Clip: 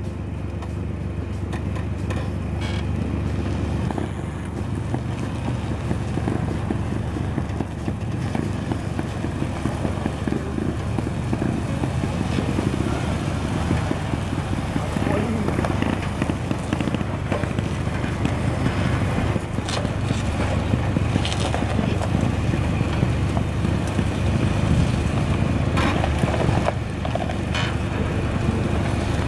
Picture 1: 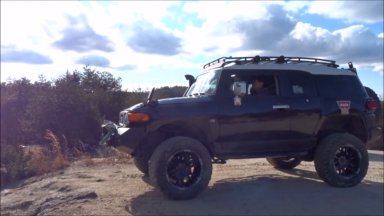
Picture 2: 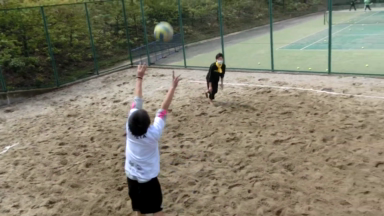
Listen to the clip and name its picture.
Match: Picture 1